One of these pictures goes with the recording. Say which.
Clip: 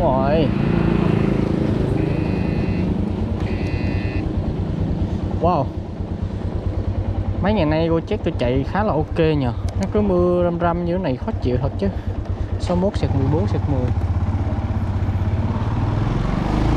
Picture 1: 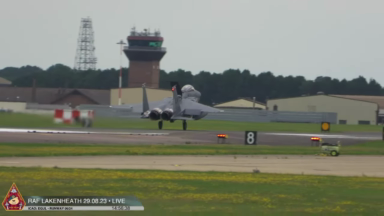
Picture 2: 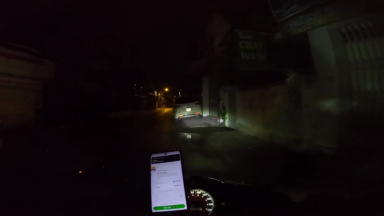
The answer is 2